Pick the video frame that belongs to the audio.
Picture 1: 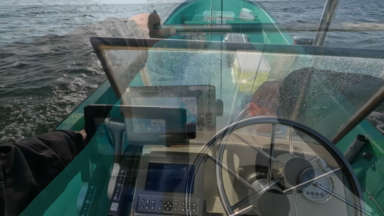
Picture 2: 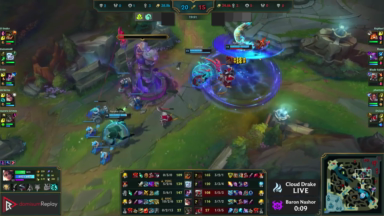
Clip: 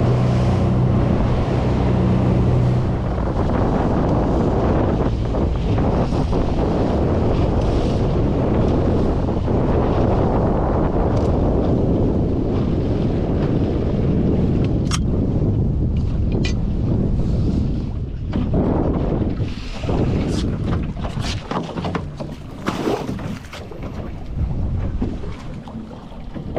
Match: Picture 1